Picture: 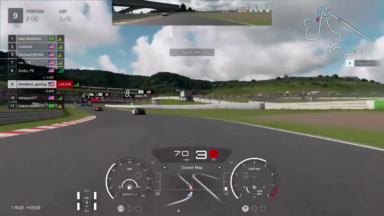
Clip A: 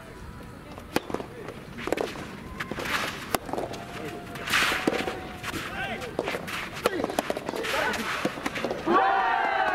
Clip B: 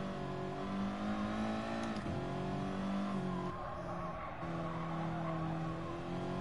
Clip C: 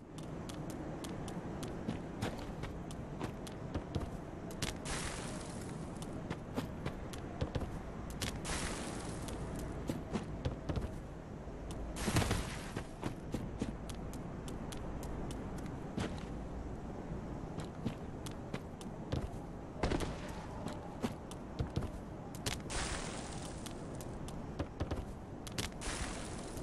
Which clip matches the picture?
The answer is B